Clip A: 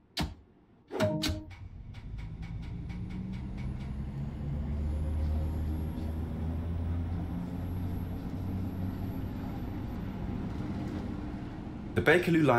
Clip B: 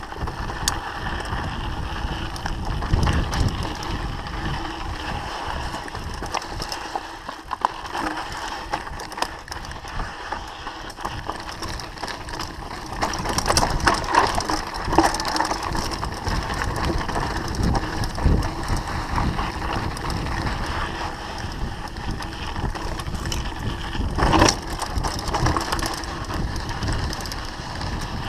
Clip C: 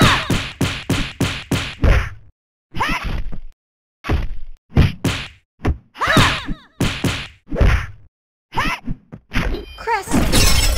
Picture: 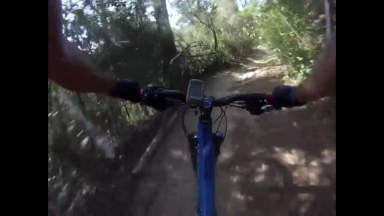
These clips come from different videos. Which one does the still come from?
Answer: B